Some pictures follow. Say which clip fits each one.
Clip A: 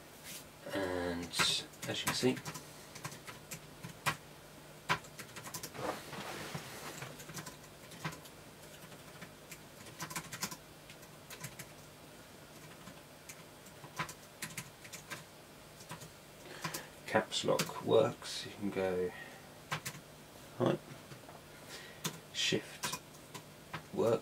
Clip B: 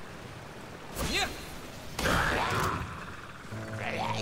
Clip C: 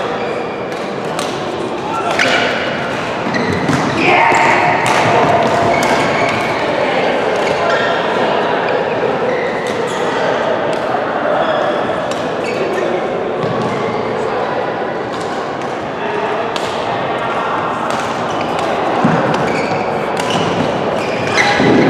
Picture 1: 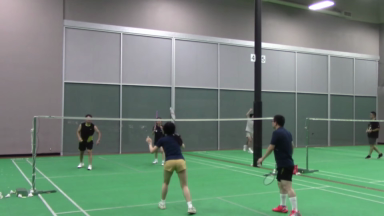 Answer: C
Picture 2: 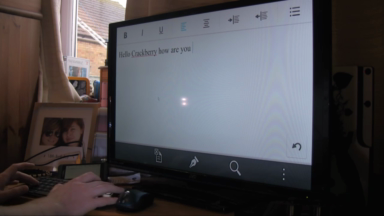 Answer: A